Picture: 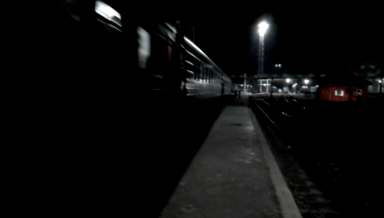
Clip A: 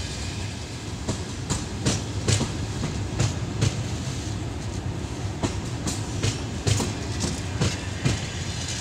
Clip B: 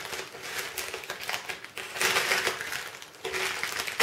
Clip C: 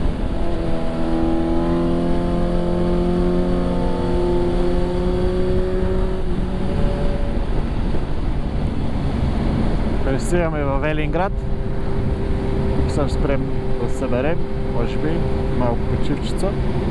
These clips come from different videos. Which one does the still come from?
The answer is A